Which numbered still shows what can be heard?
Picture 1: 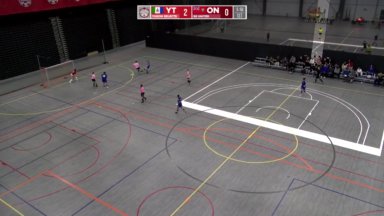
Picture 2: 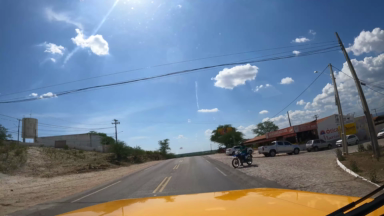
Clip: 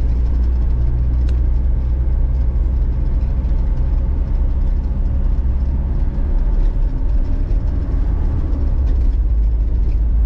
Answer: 2